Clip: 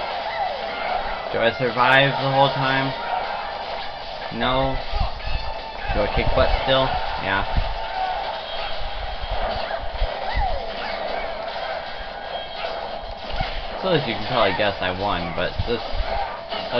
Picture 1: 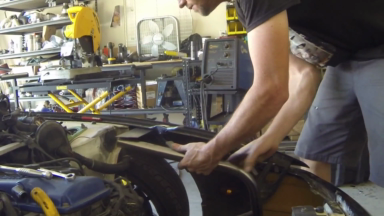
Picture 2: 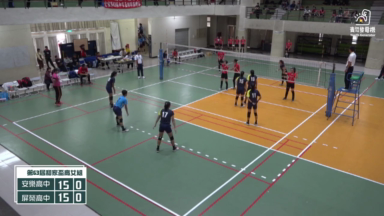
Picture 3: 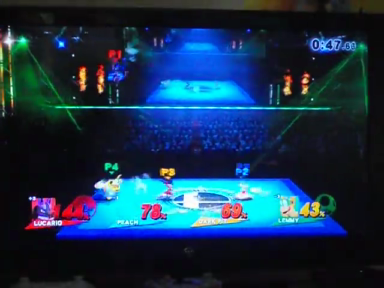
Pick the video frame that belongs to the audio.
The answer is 3